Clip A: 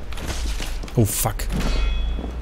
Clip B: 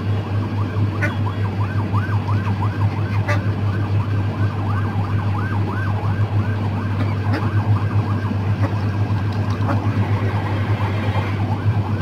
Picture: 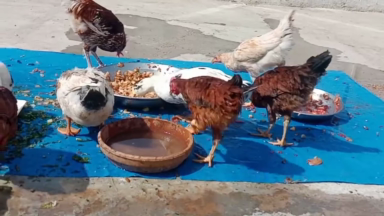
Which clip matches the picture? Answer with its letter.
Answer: B